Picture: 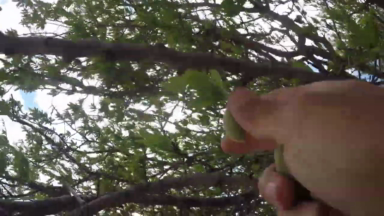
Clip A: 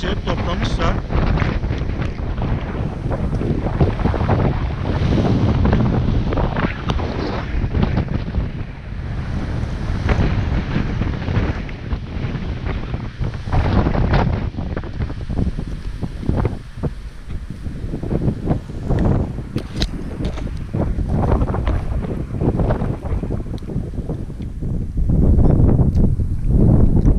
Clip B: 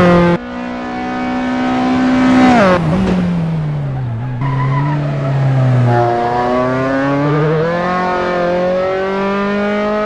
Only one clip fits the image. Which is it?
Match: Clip A